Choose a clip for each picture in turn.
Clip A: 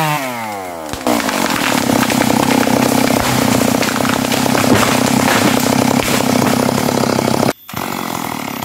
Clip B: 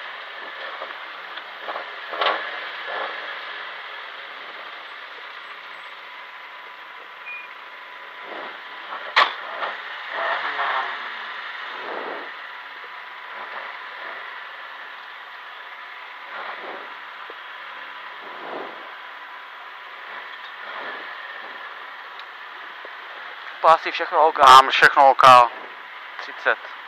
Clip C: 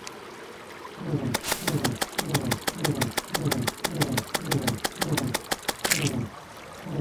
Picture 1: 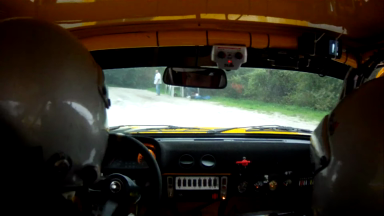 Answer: B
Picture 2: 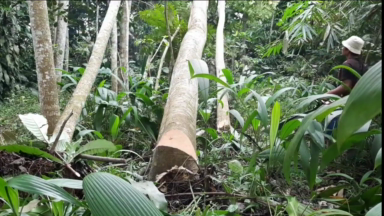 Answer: A